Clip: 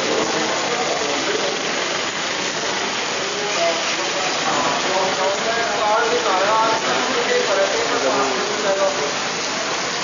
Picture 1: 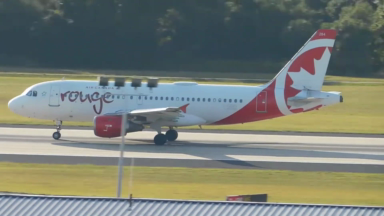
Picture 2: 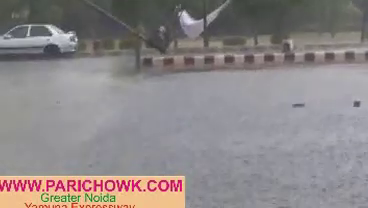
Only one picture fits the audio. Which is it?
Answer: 2